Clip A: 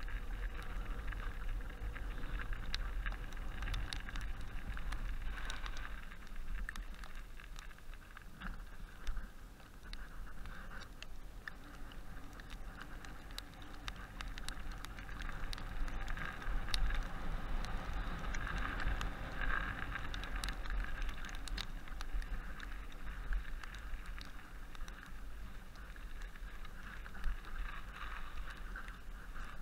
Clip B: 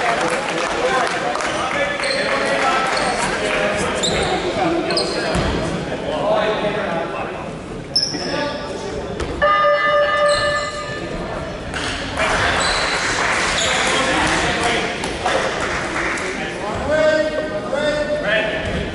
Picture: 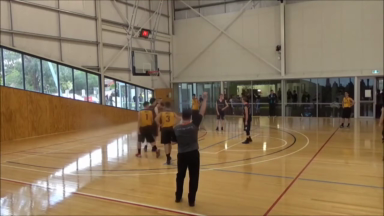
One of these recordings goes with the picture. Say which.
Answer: B